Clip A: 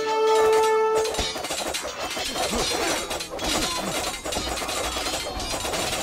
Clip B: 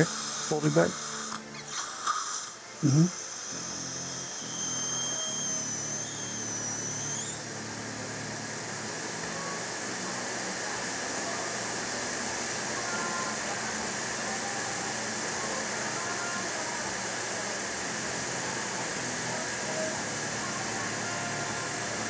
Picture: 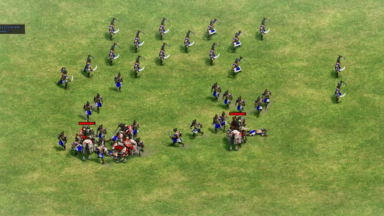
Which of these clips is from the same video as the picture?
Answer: A